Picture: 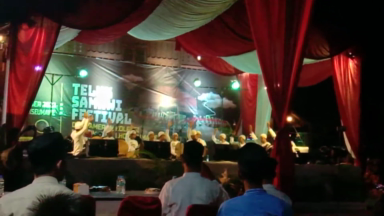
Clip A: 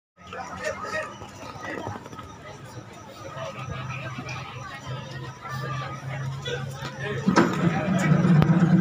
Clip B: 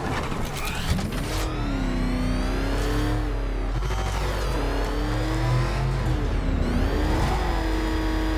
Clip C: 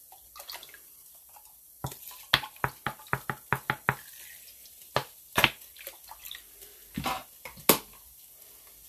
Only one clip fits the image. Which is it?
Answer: A